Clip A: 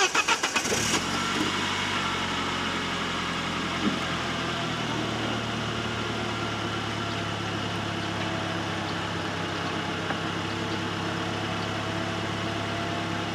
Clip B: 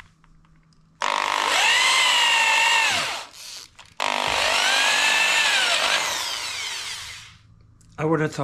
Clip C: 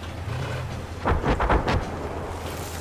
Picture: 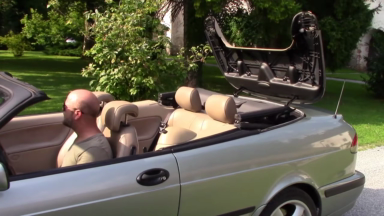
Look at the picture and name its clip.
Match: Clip A